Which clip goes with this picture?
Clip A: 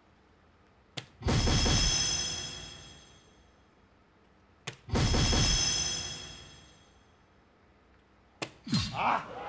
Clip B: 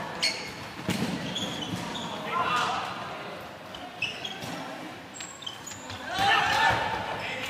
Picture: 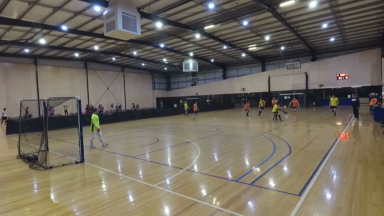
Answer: B